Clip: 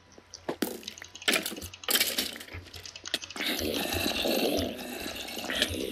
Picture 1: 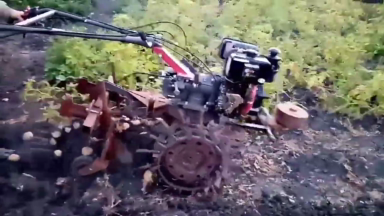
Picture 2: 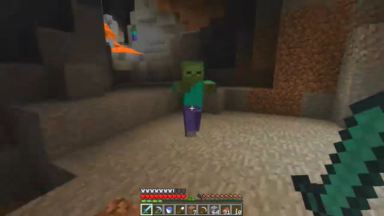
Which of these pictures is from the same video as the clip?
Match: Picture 2